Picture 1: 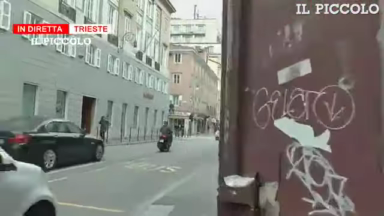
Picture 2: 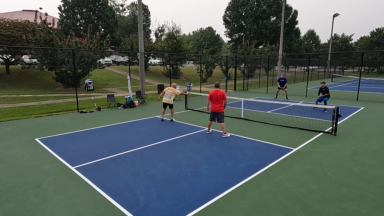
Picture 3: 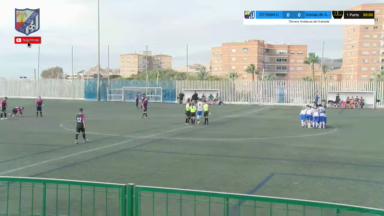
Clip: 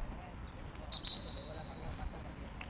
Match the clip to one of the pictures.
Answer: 3